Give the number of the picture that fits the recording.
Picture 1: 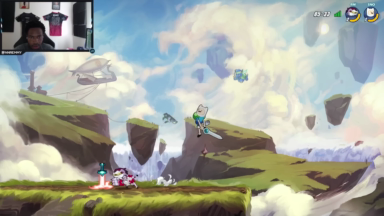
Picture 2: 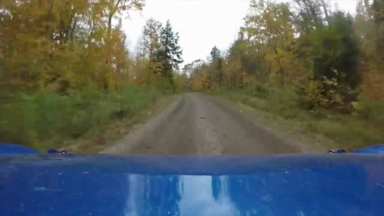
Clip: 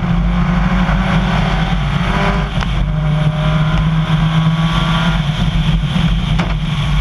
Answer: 2